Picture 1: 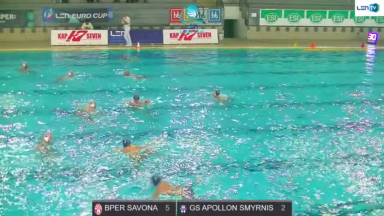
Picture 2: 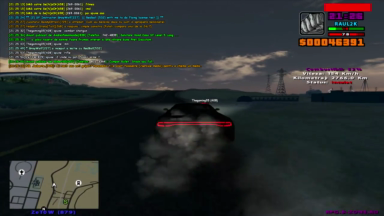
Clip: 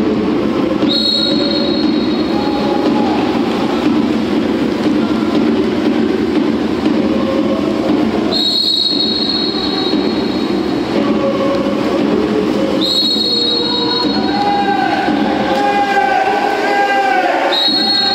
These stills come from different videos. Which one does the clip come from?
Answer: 1